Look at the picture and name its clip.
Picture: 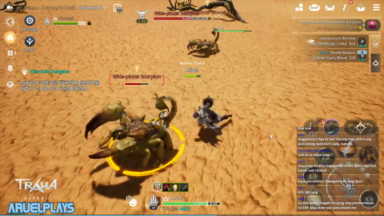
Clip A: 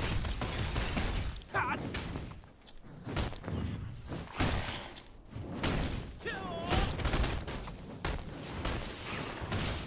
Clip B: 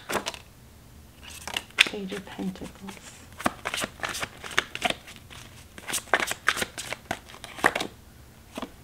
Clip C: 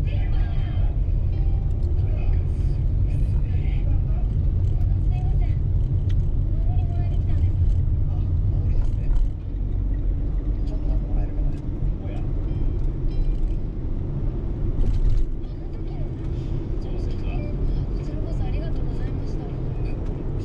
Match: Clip A